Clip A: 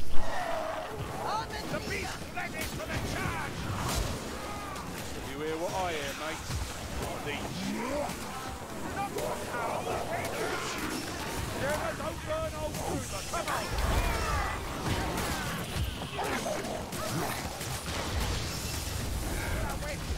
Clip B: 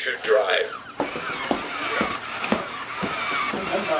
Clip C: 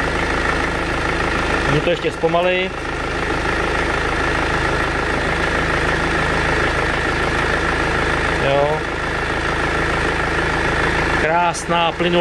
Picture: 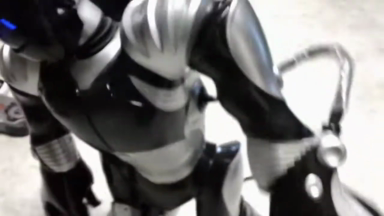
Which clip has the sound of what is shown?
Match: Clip B